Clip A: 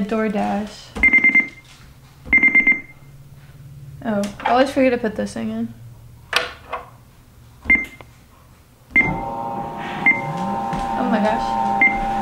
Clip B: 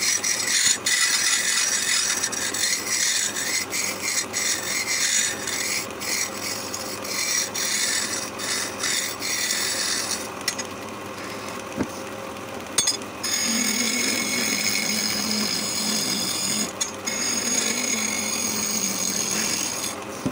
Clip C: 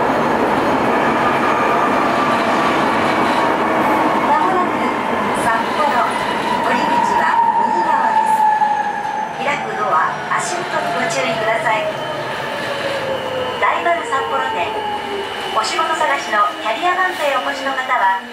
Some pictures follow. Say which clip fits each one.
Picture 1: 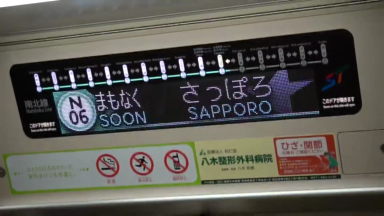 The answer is C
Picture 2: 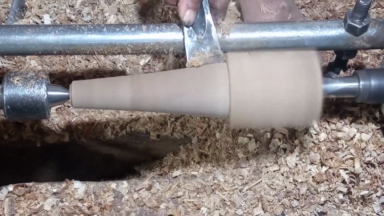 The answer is B